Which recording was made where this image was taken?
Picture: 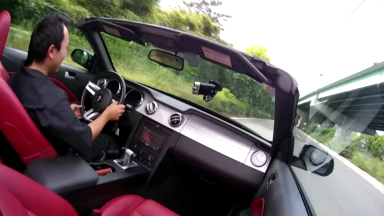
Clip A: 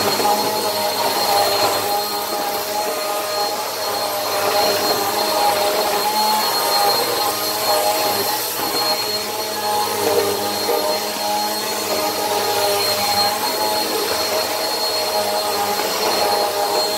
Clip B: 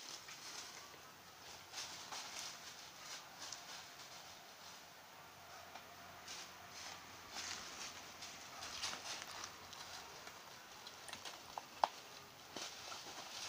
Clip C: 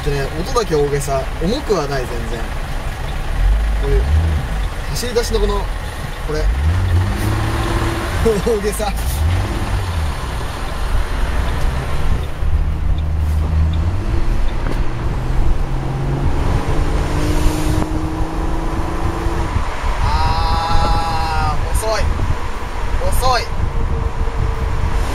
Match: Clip C